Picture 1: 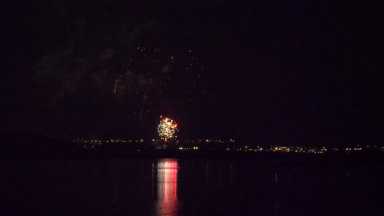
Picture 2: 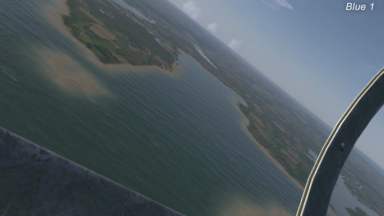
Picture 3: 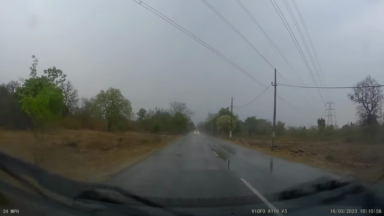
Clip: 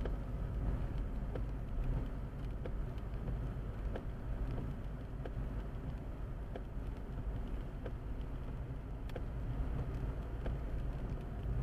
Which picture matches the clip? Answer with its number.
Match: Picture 3